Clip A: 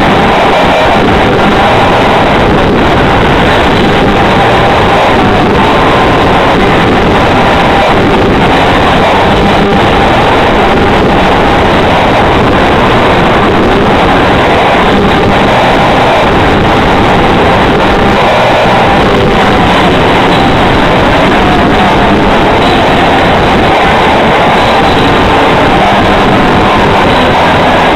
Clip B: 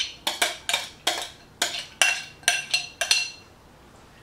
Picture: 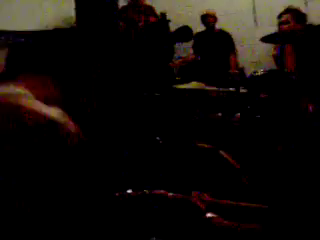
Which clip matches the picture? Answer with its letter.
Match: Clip A